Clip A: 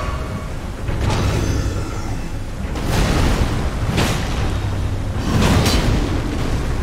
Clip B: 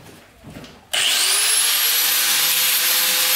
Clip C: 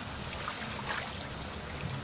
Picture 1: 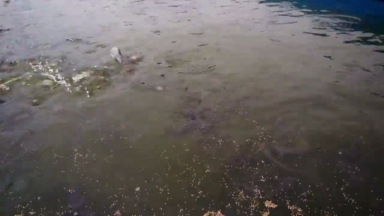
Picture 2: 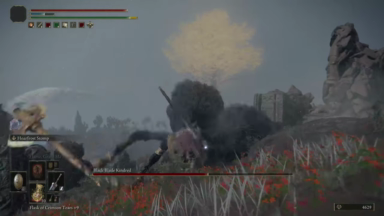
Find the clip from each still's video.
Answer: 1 C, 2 A